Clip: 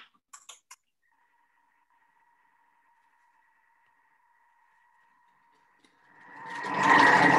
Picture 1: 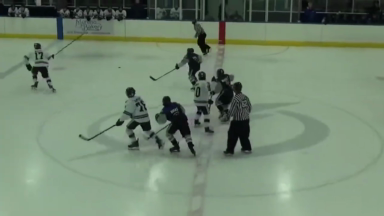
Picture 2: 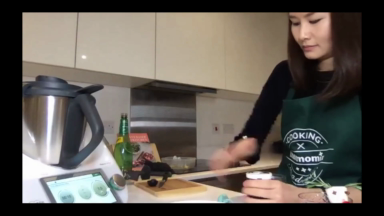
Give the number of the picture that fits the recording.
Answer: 2